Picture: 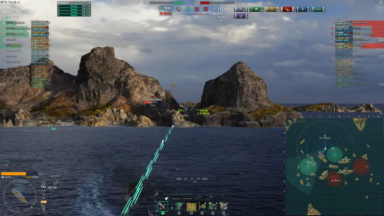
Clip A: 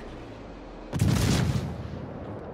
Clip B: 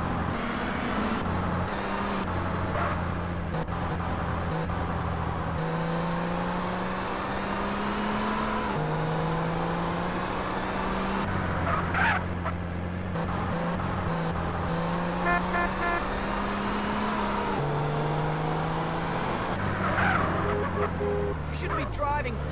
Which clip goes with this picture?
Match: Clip A